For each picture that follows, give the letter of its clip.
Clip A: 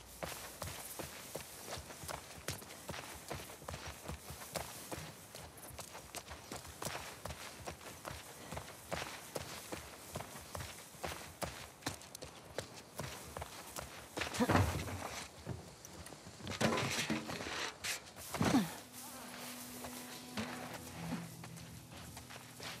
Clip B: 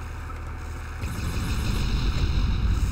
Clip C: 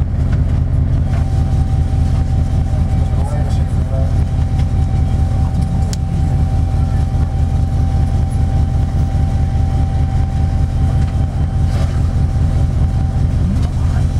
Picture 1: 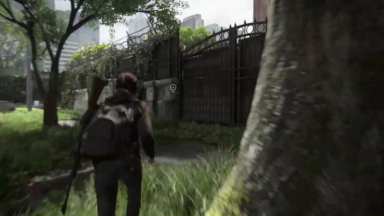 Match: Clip A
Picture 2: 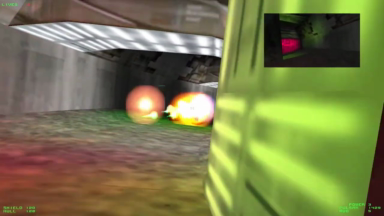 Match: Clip B